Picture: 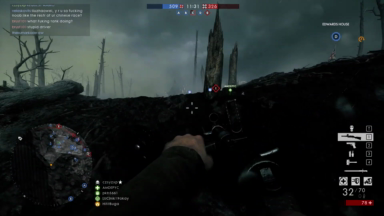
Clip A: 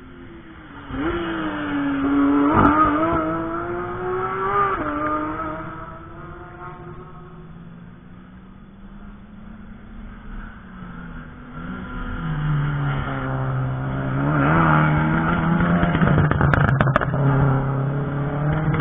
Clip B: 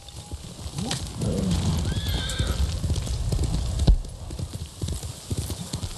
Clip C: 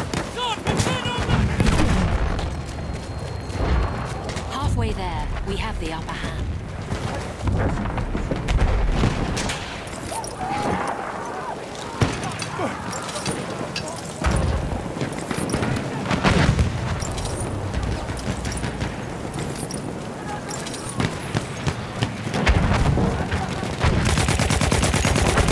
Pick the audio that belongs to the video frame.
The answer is C